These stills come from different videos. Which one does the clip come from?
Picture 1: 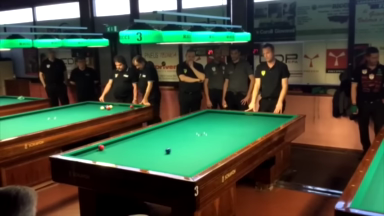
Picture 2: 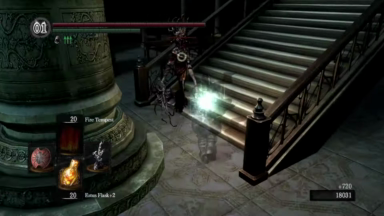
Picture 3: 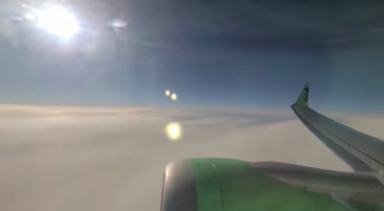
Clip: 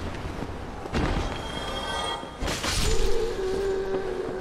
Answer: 2